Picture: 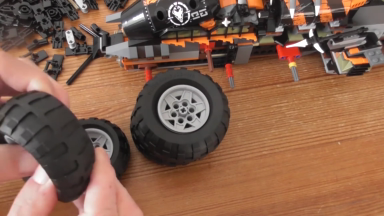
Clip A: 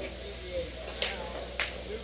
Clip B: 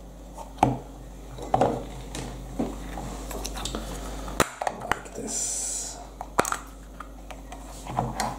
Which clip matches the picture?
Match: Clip B